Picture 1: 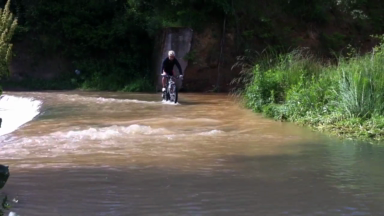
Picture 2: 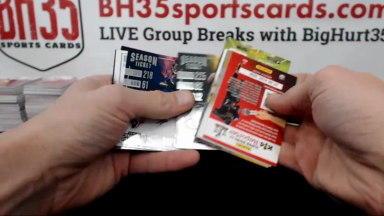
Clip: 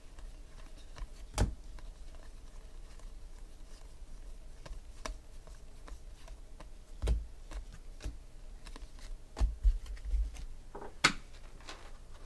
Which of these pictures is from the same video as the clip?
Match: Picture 2